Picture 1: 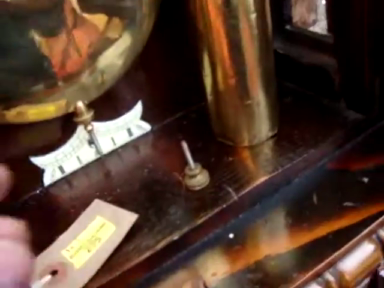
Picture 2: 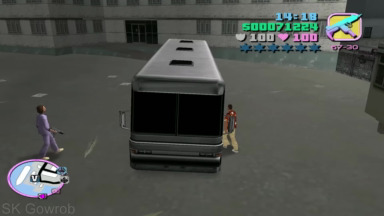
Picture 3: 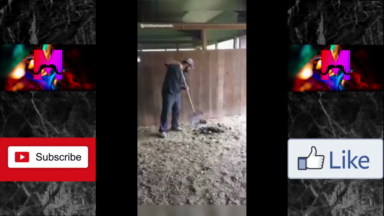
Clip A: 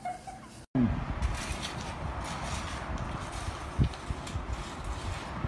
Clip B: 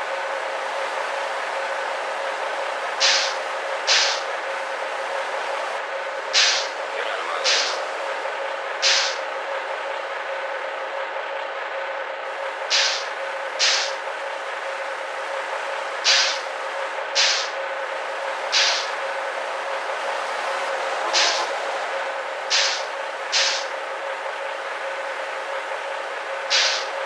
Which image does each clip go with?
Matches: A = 3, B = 2